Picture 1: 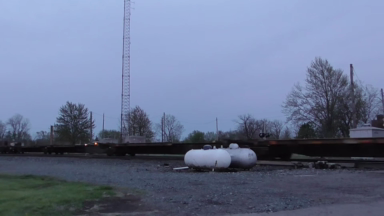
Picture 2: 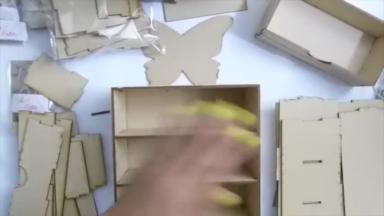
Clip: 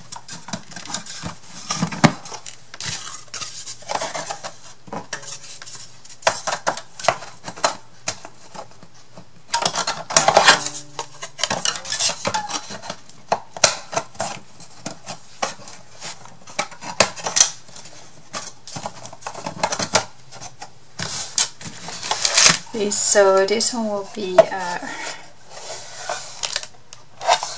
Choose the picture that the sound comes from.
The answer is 2